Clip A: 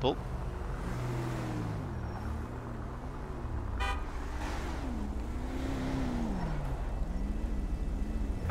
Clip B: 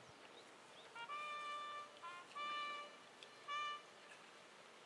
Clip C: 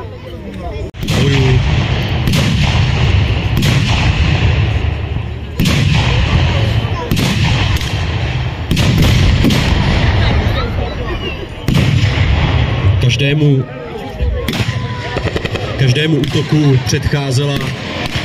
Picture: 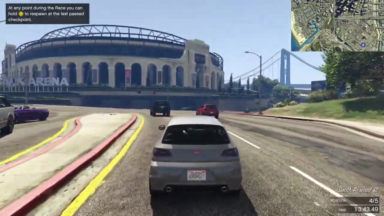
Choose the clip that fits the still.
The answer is A